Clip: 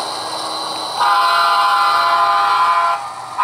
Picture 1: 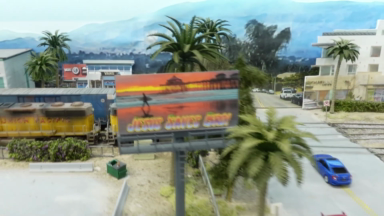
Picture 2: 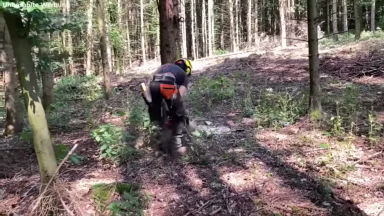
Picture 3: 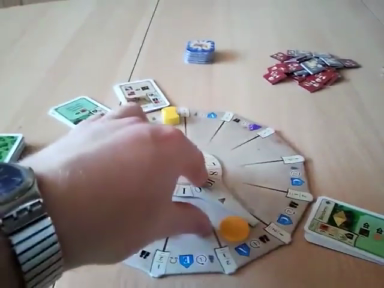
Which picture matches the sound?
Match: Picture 1